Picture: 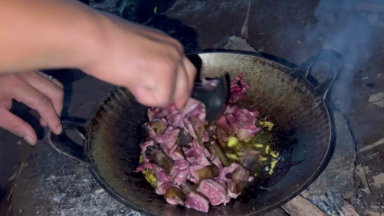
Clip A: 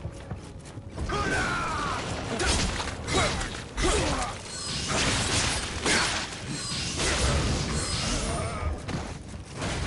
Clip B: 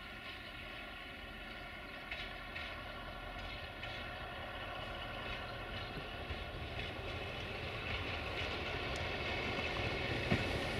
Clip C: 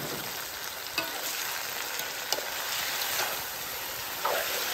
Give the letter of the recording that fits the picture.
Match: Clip C